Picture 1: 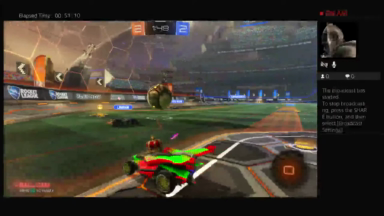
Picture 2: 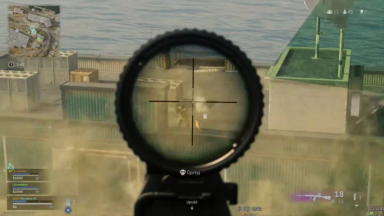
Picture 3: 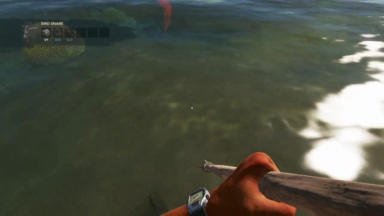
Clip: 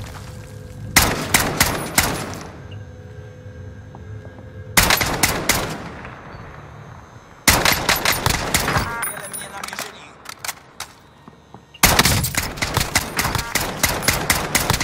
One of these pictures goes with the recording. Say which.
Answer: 2